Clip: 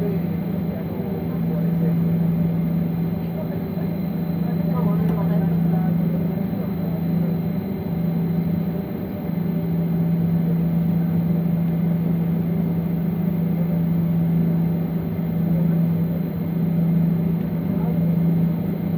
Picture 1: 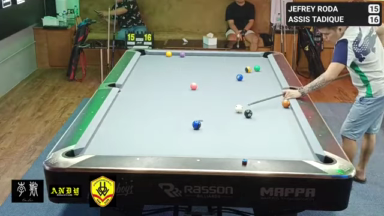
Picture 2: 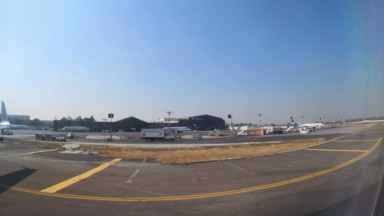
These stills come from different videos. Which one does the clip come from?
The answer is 2